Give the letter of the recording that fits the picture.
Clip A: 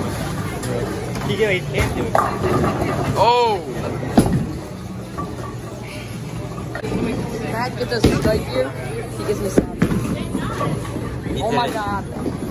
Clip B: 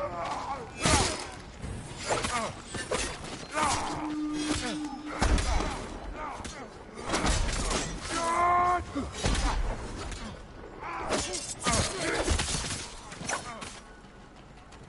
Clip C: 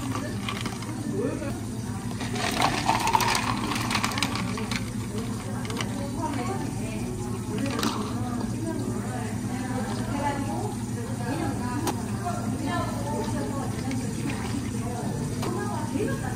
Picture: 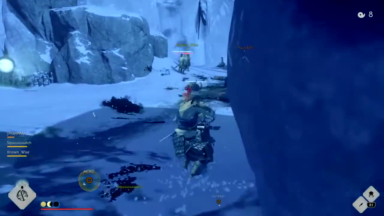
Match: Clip B